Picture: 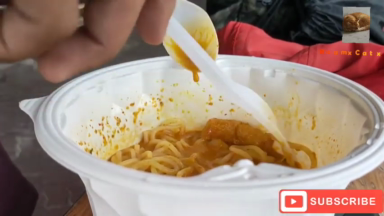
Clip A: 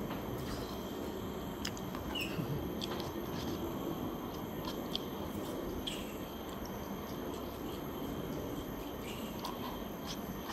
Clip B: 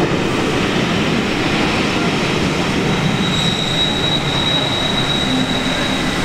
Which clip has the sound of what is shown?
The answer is A